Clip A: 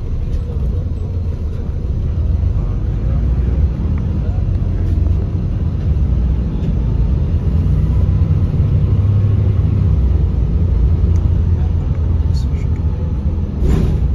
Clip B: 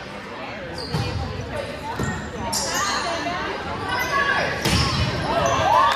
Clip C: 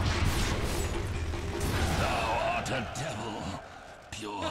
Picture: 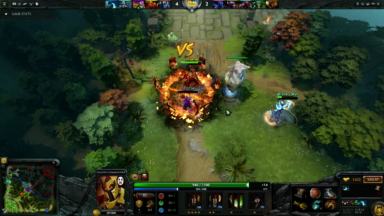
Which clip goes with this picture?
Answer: C